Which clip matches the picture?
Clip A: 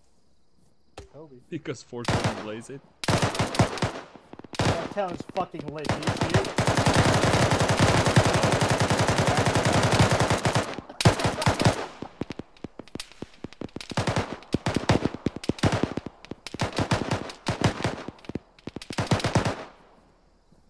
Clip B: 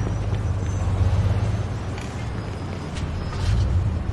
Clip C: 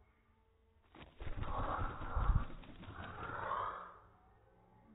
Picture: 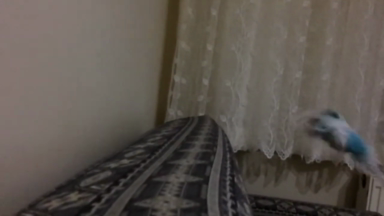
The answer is C